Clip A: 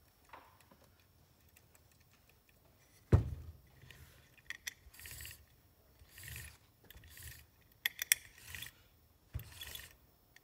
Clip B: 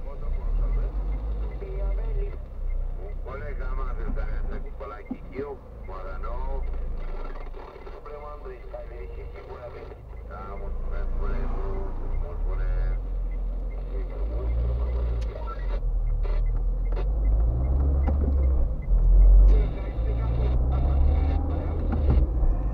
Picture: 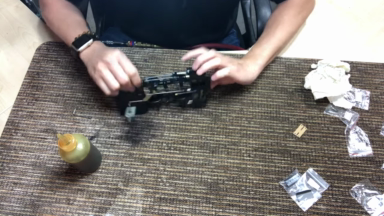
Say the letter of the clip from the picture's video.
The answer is A